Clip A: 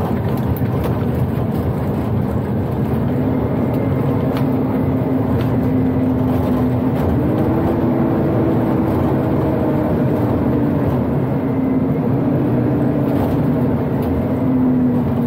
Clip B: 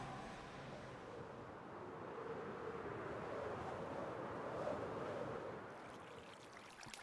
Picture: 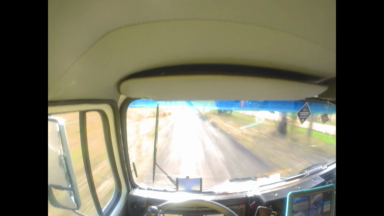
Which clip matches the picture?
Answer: A